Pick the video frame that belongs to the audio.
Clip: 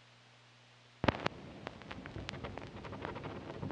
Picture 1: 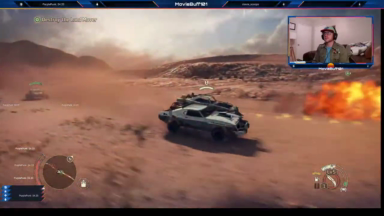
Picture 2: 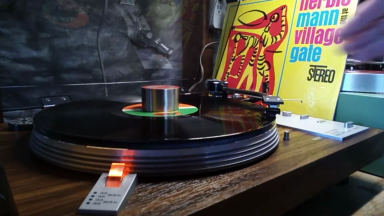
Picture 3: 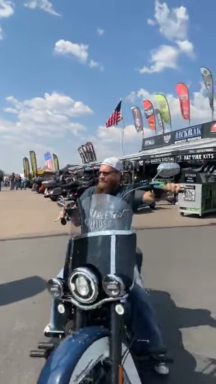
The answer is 2